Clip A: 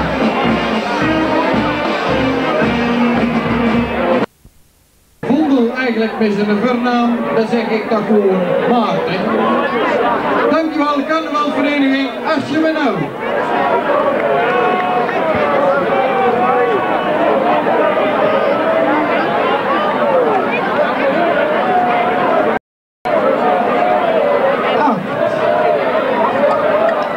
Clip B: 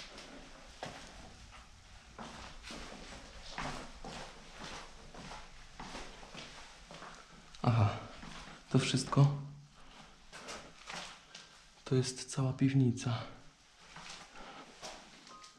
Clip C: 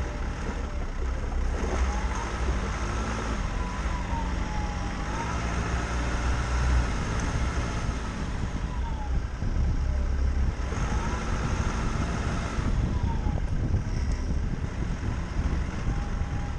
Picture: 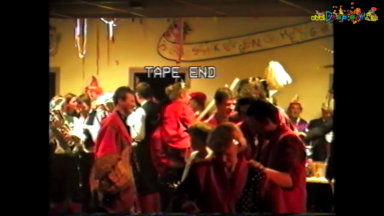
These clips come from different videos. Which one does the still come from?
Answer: A